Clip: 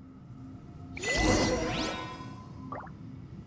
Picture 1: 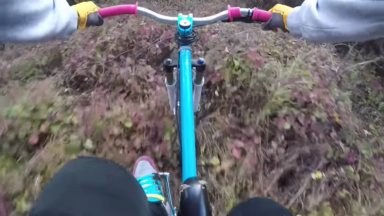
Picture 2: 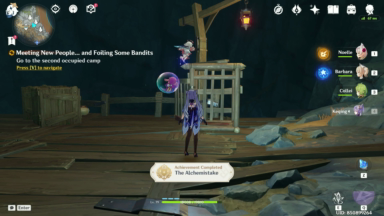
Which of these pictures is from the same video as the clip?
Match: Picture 2